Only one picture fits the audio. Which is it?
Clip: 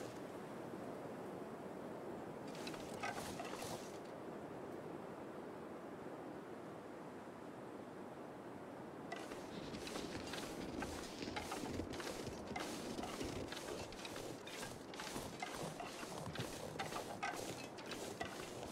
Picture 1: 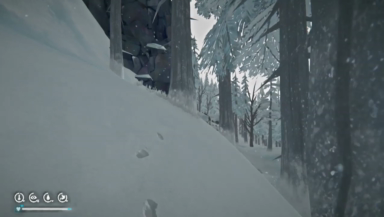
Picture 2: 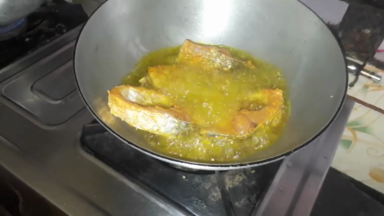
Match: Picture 1